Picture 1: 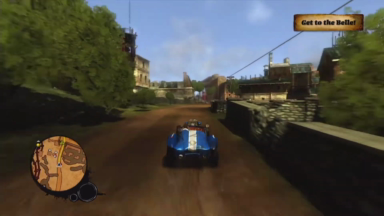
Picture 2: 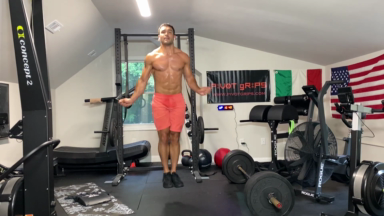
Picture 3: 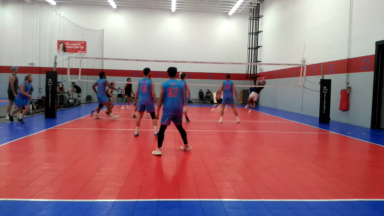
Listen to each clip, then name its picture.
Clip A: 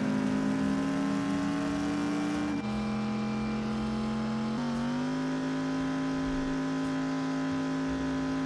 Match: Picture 1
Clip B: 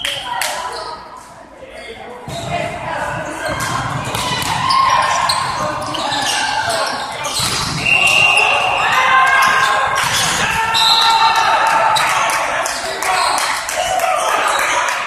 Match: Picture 3